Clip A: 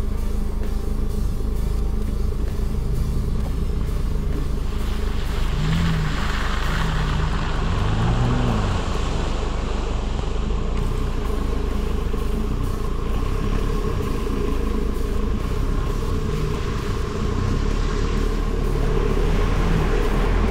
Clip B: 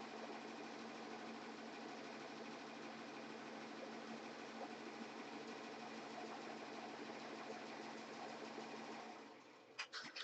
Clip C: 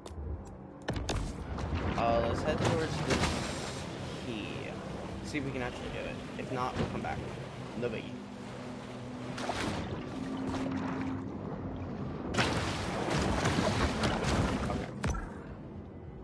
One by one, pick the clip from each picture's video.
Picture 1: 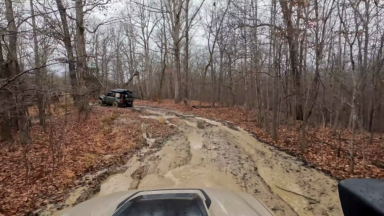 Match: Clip A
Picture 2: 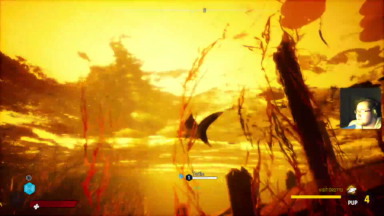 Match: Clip C